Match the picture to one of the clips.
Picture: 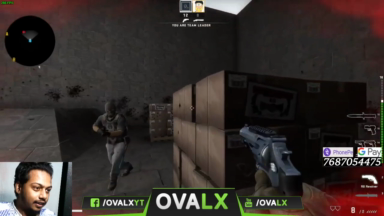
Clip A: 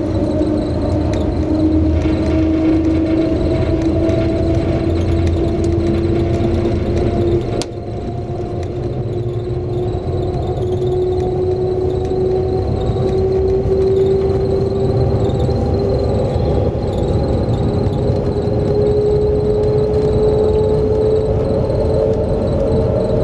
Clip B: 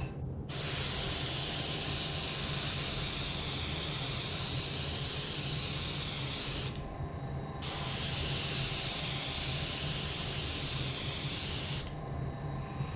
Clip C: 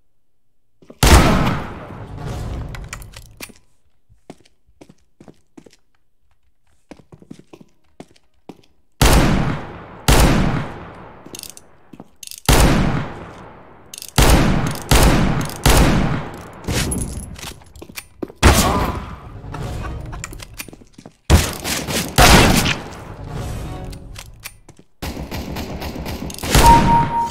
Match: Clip C